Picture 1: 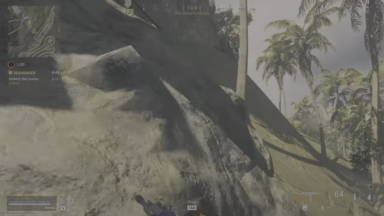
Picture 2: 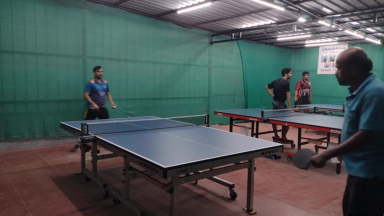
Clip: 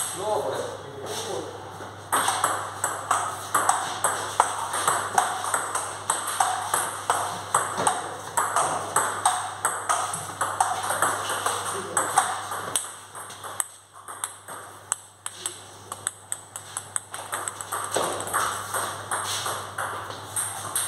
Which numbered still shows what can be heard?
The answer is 2